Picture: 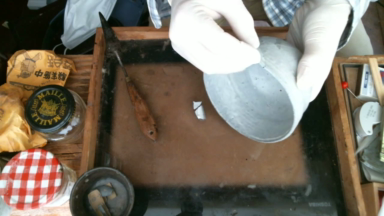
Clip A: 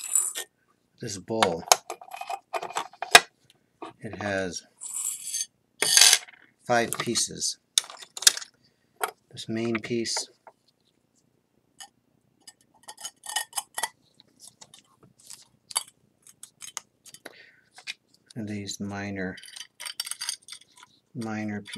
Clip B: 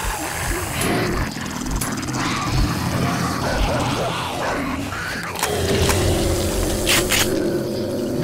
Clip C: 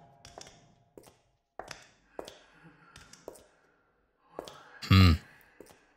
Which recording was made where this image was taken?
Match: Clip A